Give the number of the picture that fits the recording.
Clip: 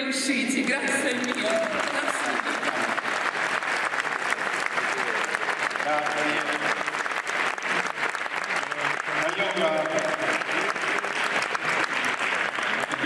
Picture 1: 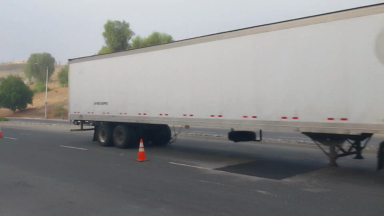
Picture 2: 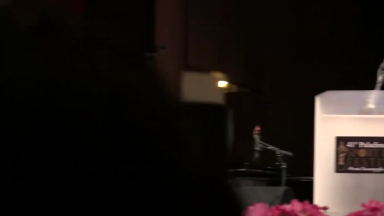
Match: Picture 2